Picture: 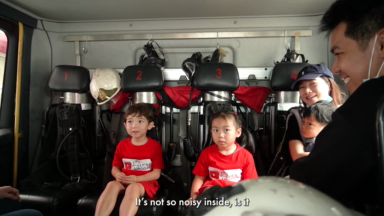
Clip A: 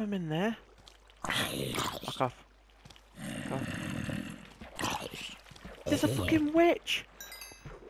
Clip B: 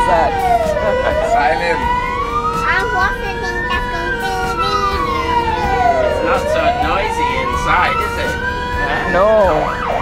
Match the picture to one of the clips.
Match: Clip B